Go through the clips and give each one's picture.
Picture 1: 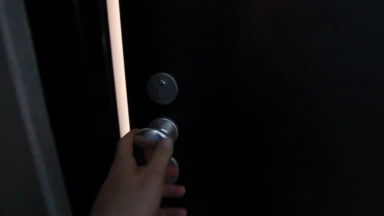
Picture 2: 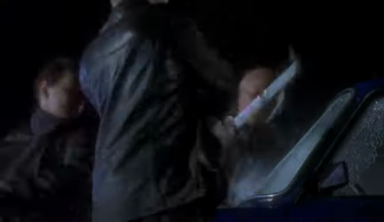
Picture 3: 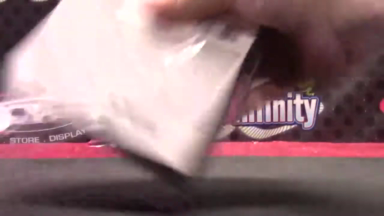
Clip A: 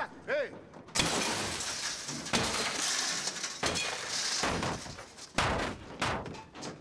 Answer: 2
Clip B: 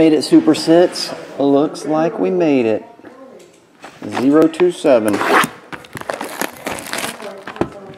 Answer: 3